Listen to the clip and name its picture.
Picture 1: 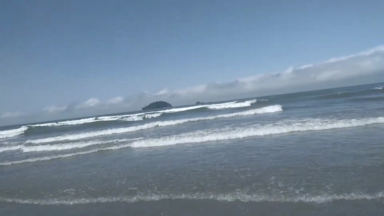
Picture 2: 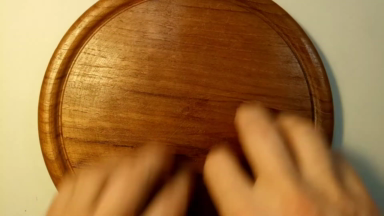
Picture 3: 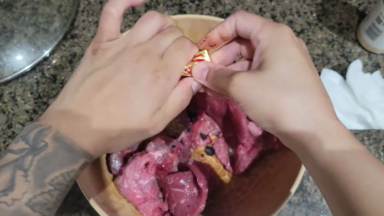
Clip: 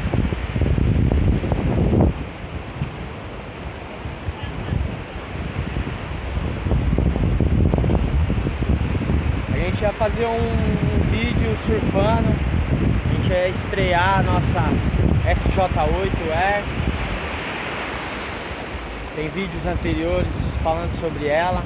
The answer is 1